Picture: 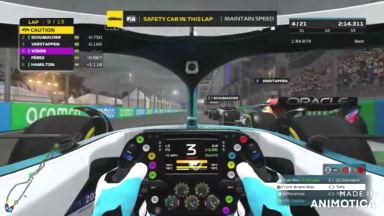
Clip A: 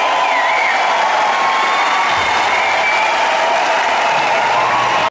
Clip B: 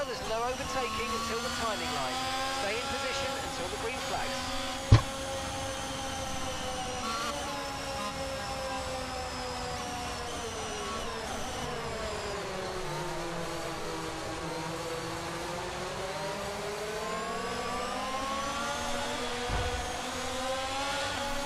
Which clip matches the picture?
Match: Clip B